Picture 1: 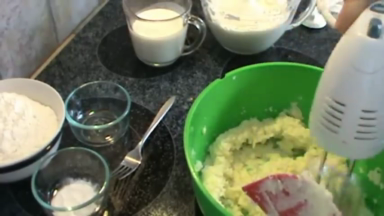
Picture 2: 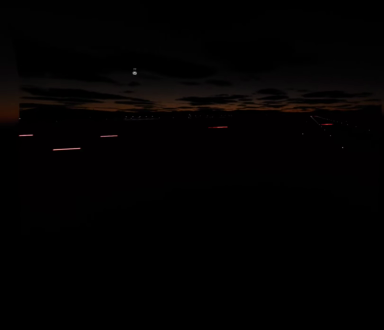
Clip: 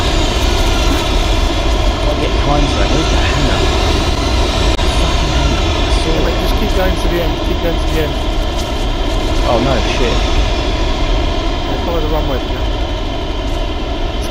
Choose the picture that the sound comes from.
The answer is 2